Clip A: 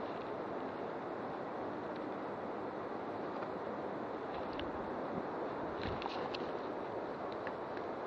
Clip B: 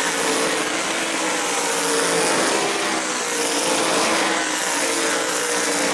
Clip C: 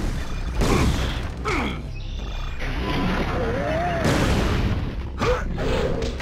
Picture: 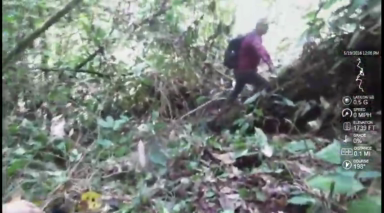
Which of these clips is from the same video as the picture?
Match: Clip A